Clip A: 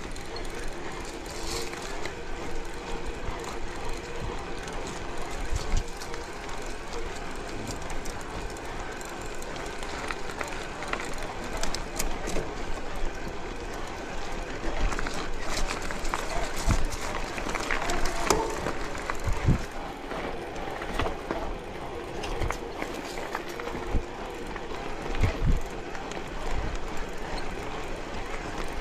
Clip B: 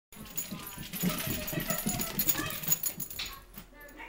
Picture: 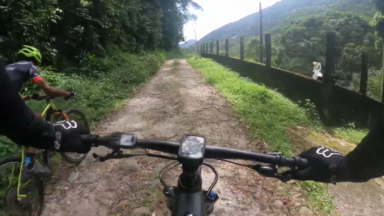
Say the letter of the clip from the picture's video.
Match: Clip A